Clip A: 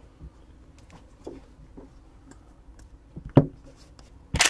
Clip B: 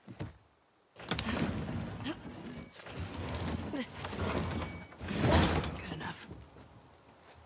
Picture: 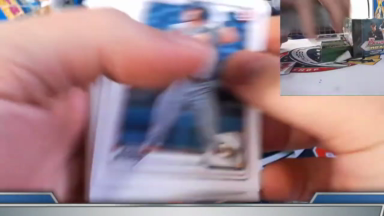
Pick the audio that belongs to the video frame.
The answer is A